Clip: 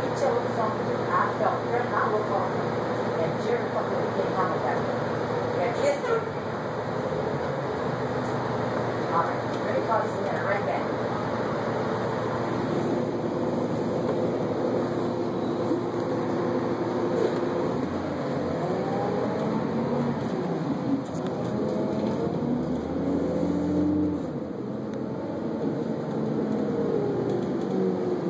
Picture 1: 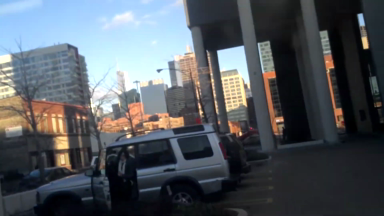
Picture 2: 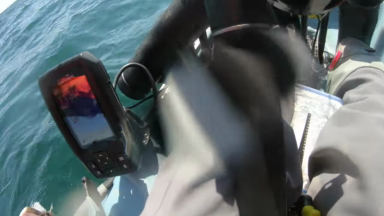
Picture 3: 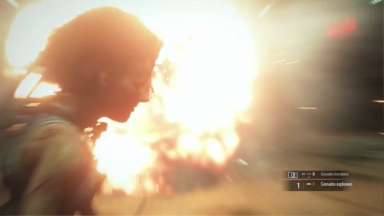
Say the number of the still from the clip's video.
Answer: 1